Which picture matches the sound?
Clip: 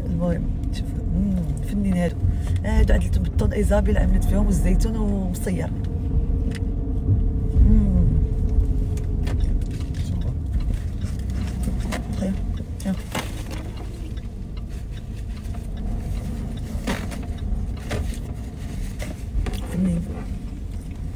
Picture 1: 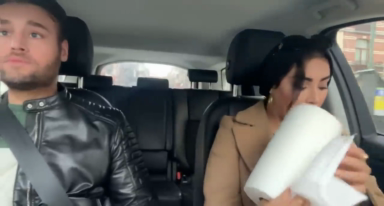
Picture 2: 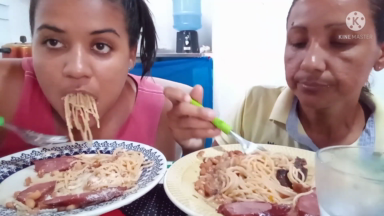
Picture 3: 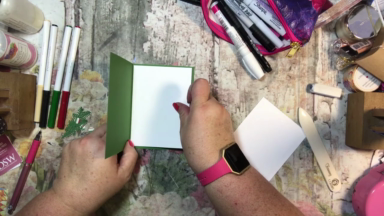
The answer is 1